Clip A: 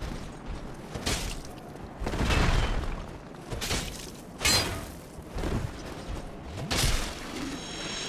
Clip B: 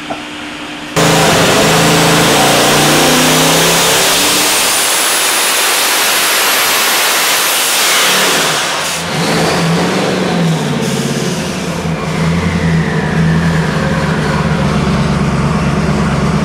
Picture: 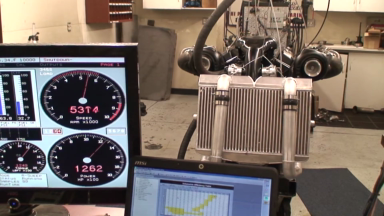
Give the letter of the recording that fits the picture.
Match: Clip B